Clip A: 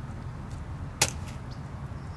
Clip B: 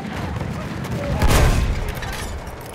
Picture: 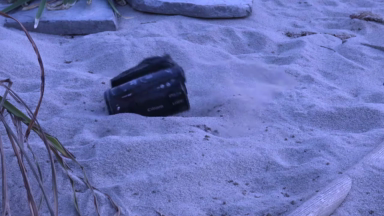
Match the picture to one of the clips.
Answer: A